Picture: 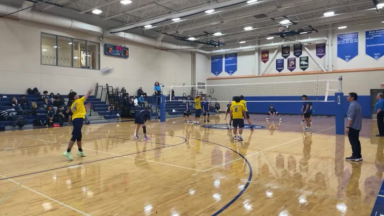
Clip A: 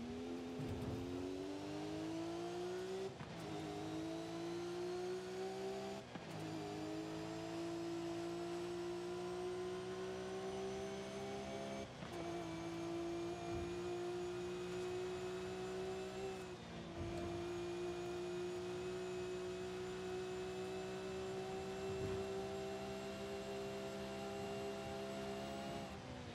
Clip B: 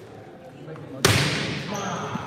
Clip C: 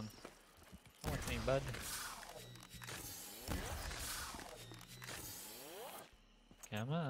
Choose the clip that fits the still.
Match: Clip B